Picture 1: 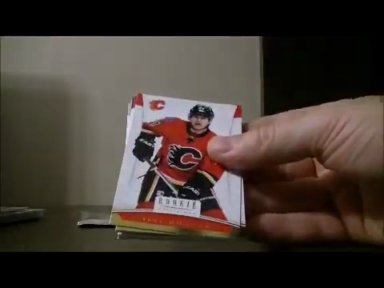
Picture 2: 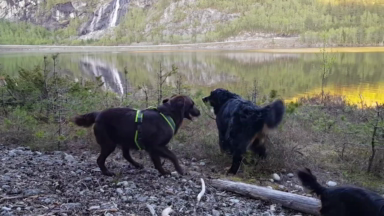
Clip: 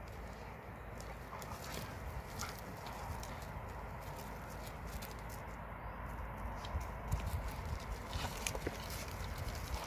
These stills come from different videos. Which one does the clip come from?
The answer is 2